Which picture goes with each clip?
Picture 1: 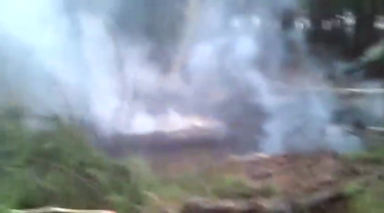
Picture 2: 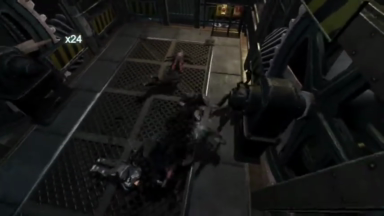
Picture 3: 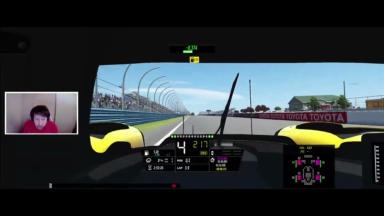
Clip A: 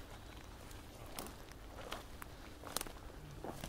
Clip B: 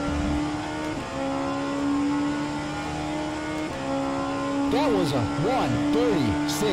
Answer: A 1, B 3